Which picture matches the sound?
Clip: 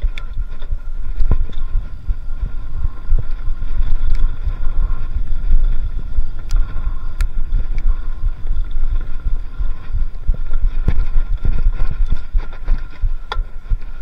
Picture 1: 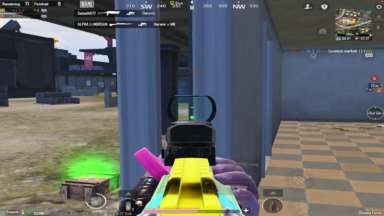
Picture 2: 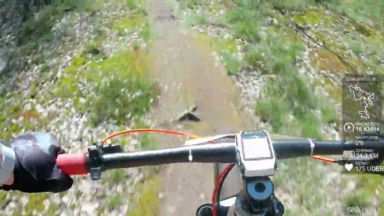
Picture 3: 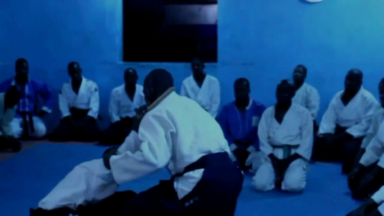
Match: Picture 2